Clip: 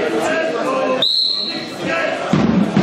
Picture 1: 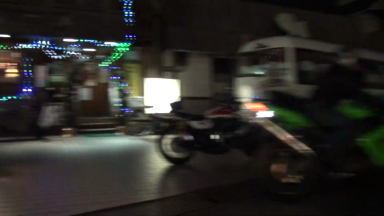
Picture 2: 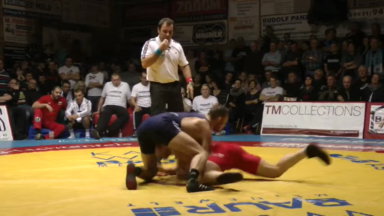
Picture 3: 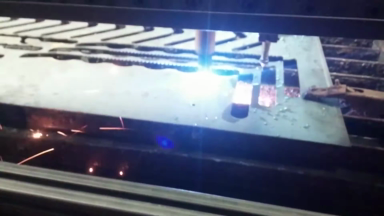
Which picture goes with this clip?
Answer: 2